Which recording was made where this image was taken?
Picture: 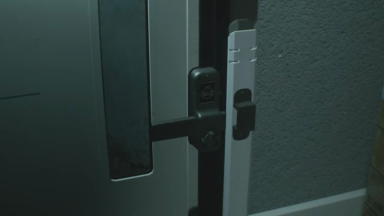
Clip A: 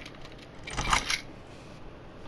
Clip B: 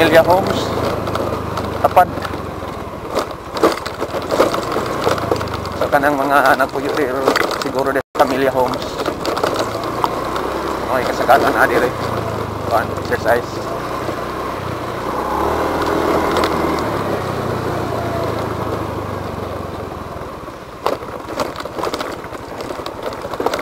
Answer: A